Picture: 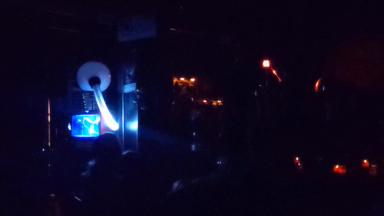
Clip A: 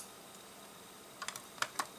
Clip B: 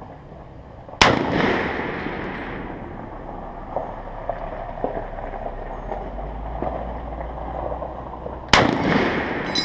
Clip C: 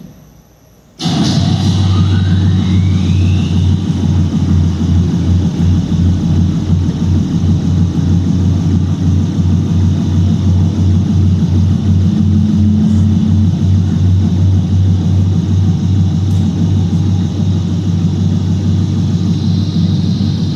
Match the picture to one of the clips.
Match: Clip C